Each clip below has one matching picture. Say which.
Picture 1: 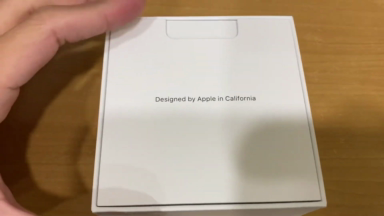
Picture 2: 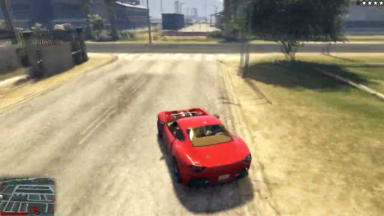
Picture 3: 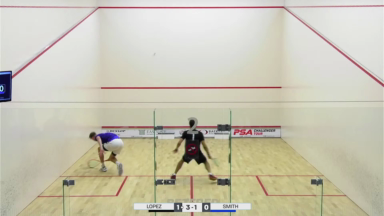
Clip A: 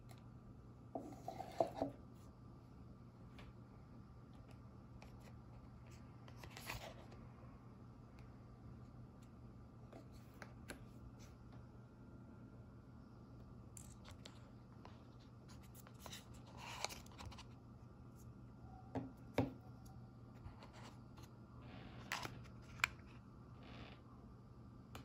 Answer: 1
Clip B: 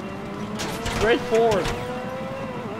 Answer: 2